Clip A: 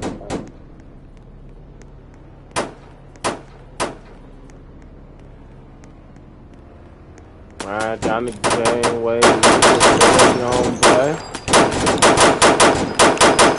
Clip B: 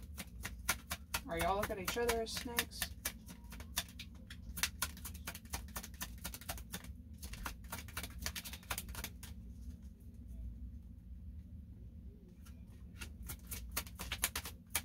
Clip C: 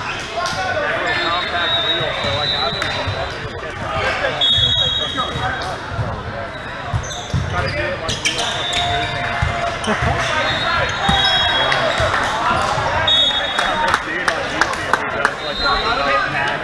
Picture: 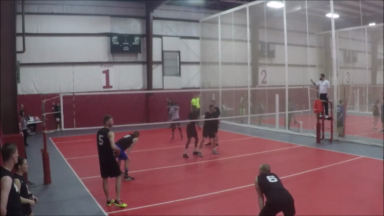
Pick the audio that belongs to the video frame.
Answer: C